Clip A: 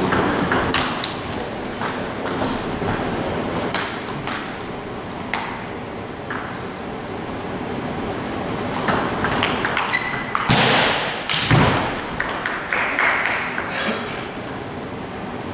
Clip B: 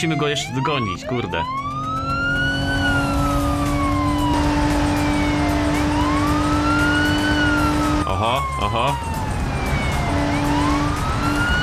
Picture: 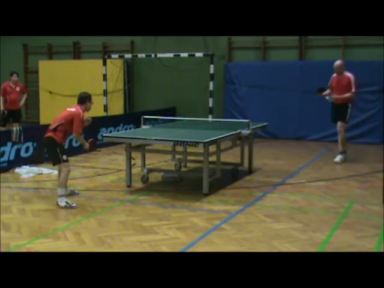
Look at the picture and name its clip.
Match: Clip A